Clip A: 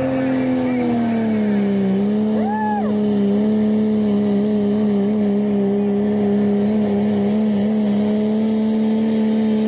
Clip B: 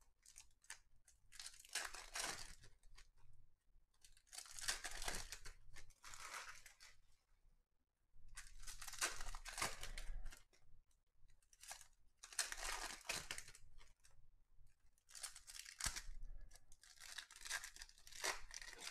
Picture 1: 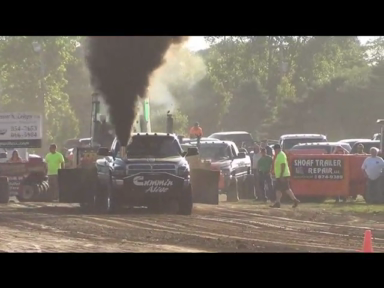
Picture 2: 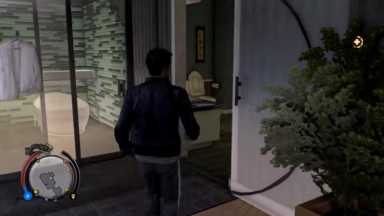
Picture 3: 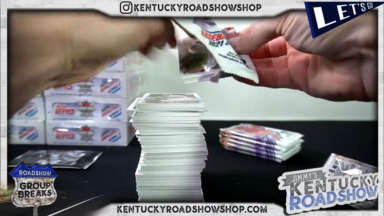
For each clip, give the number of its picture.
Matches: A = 1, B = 3